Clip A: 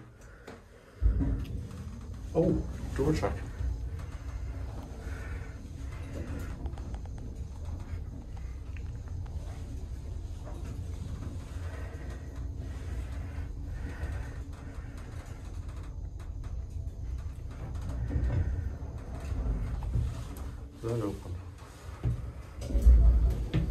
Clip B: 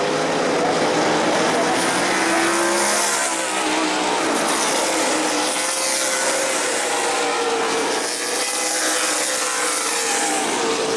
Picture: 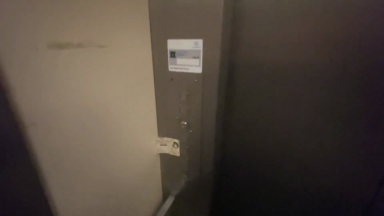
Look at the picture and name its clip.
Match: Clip A